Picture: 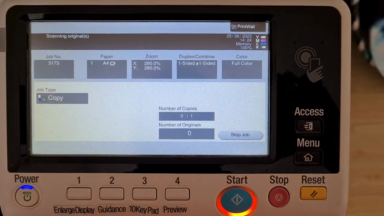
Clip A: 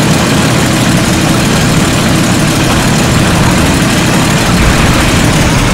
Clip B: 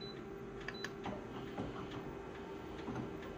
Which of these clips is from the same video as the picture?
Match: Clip B